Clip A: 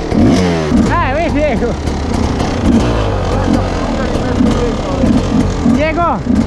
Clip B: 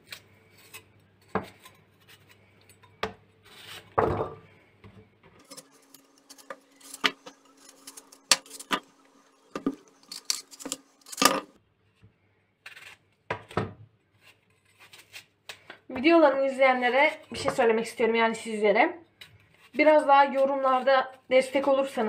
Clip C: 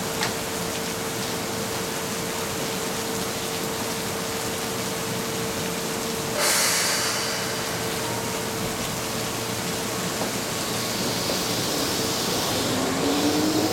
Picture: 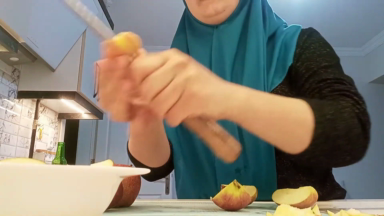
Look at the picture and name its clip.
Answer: B